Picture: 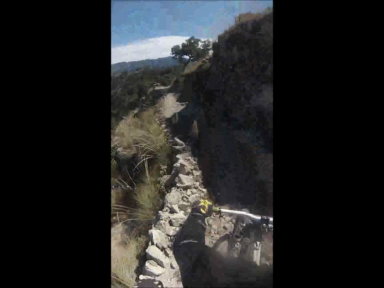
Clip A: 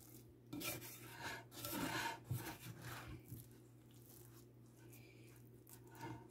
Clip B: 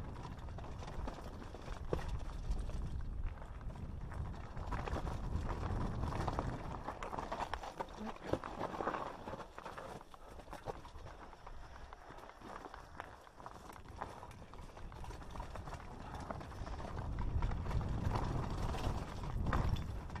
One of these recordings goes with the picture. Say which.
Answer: B